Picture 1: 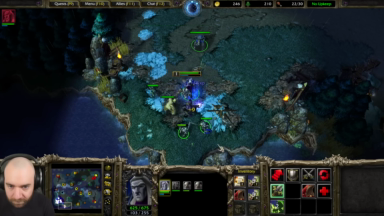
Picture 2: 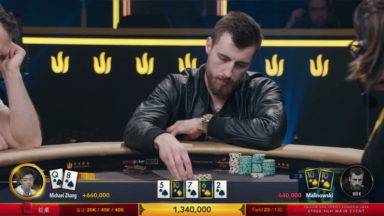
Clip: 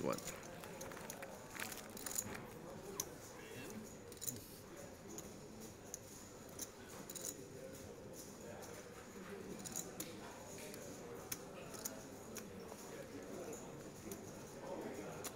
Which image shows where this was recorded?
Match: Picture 2